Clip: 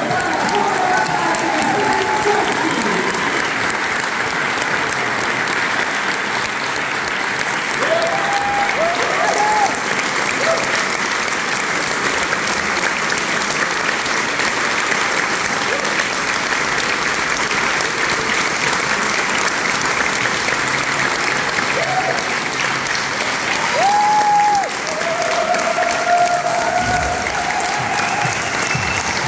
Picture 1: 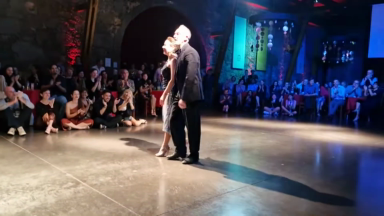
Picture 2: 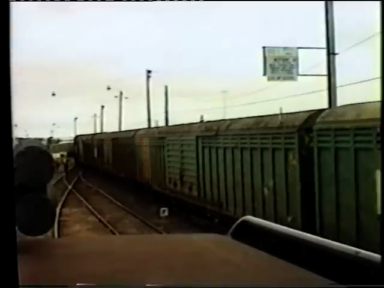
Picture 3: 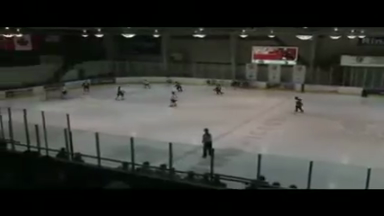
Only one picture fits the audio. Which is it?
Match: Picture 1